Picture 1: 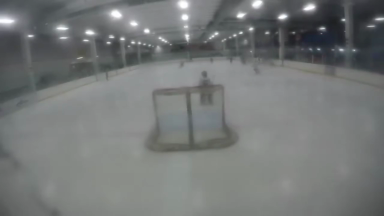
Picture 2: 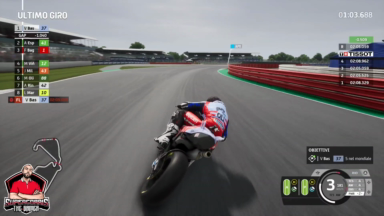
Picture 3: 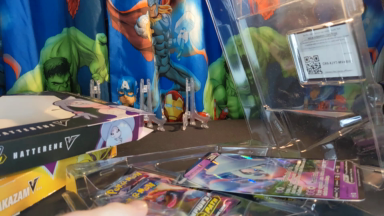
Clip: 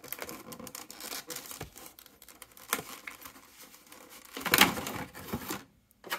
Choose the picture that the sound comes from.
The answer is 3